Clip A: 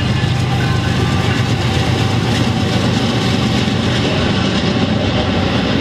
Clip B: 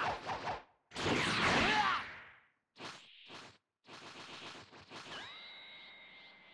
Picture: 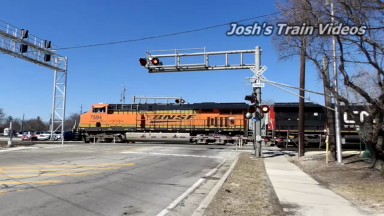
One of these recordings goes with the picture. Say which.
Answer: A